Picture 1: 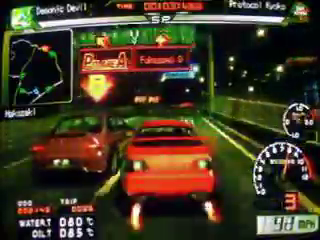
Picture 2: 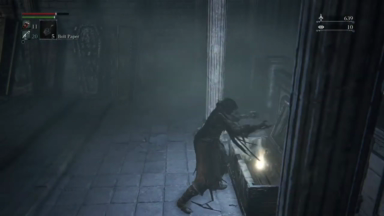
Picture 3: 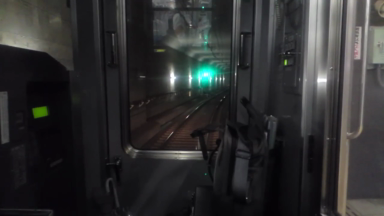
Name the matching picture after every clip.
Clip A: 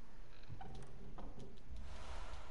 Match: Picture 2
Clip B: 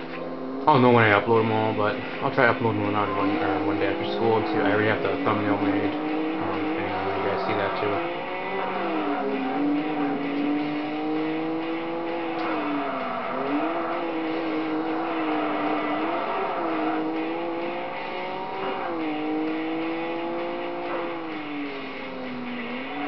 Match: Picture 1